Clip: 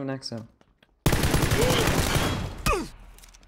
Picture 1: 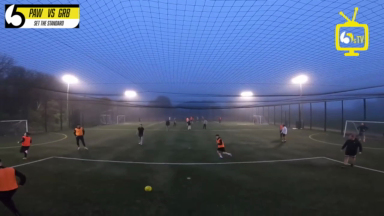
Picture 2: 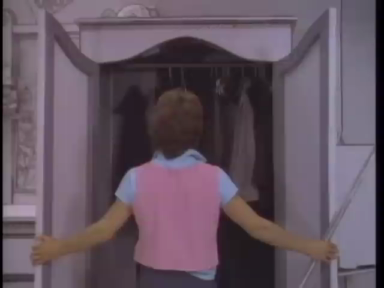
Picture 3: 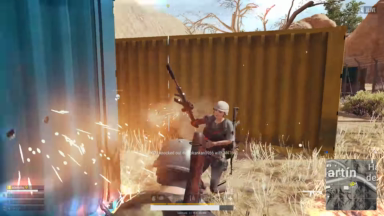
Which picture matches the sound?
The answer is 3